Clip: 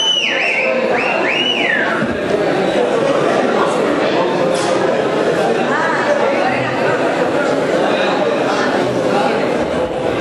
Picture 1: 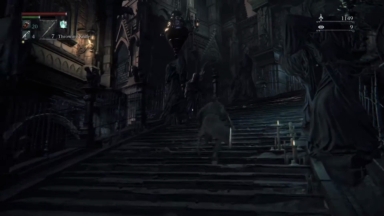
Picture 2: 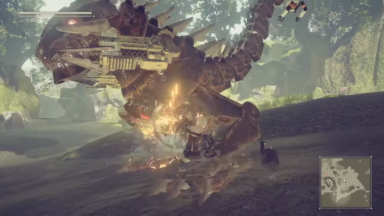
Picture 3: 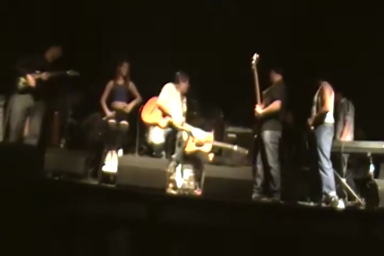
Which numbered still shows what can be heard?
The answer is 3